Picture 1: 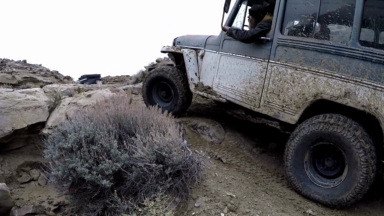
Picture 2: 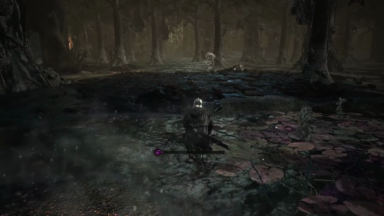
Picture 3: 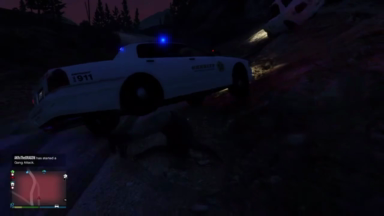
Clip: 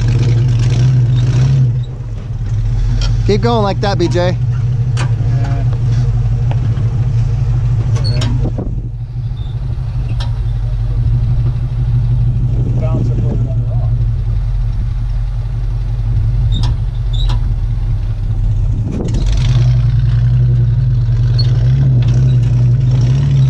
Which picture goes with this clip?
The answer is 1